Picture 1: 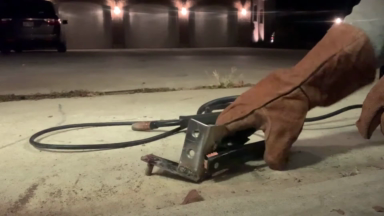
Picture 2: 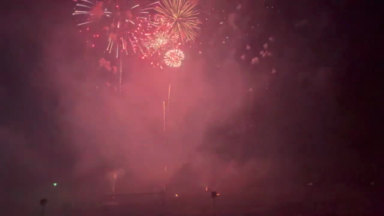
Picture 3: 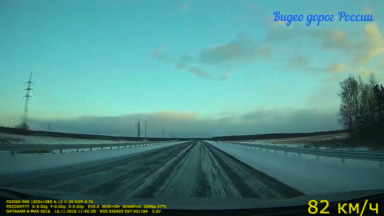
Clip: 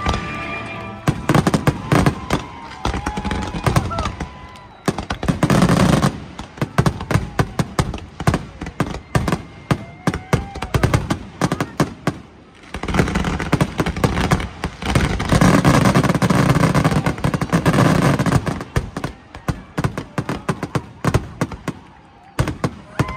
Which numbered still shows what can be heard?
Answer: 2